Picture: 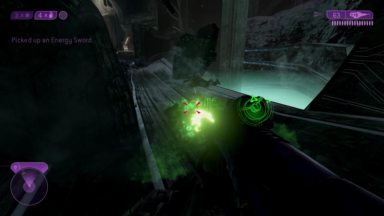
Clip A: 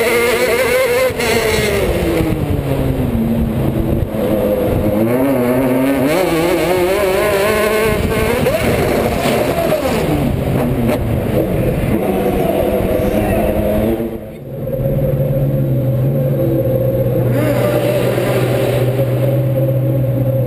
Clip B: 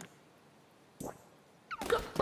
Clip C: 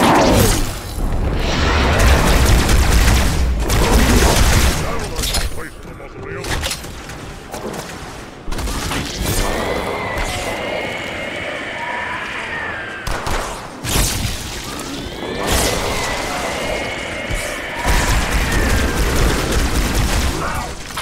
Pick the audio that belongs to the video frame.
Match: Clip C